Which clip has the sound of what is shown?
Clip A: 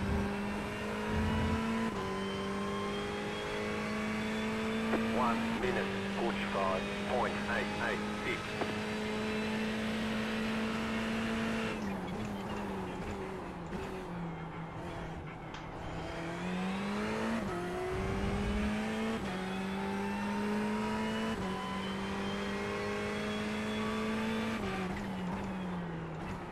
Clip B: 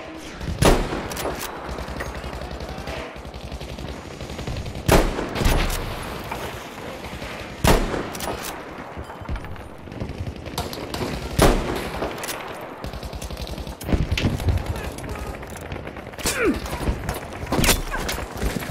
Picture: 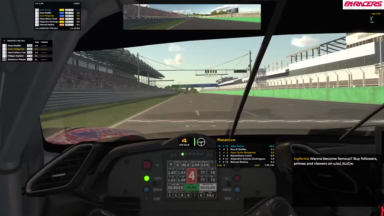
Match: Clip A